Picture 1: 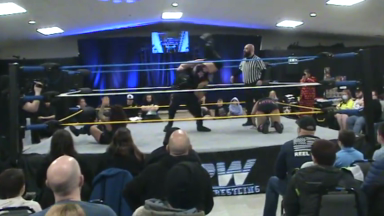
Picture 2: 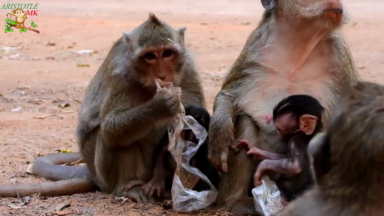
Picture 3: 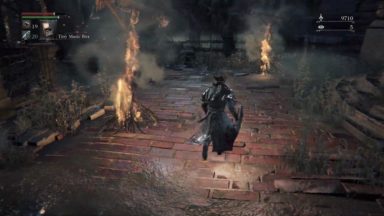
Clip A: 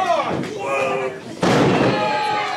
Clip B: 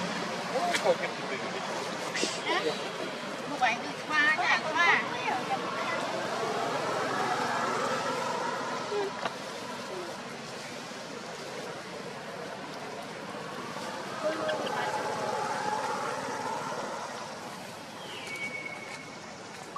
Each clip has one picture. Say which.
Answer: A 1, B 2